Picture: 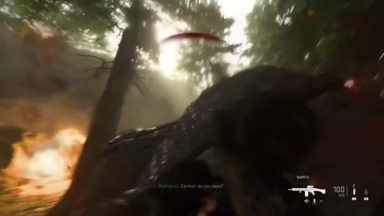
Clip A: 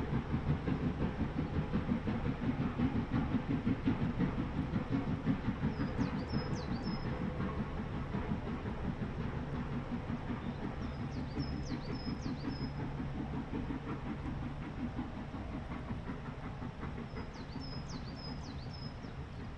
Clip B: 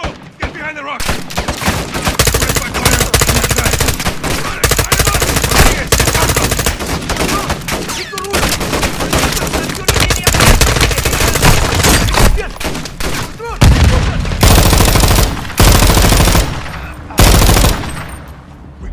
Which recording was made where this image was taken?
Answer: B